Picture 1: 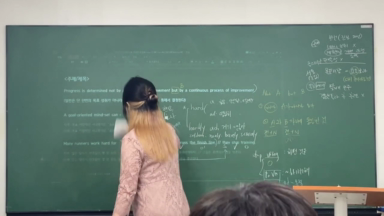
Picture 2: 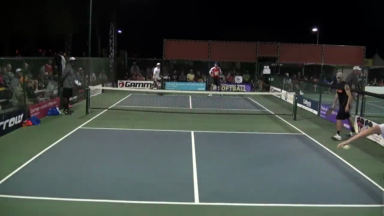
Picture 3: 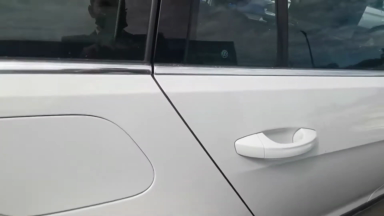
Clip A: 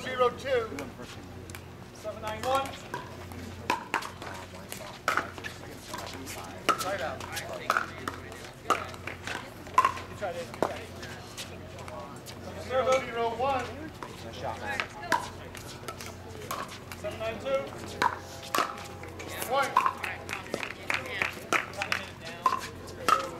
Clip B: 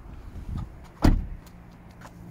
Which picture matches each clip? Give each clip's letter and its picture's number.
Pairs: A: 2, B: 3